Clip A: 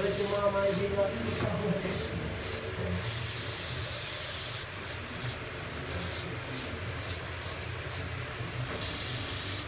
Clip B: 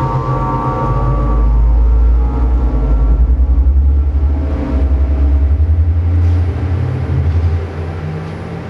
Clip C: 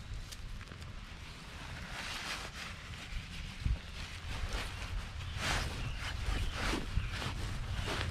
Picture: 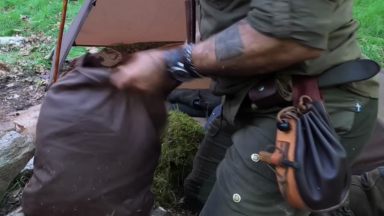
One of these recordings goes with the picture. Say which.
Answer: C